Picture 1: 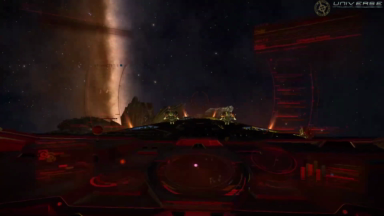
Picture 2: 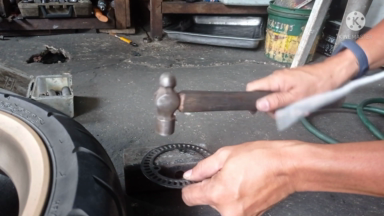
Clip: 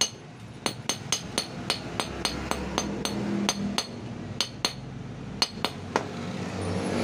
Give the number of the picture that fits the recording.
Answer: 2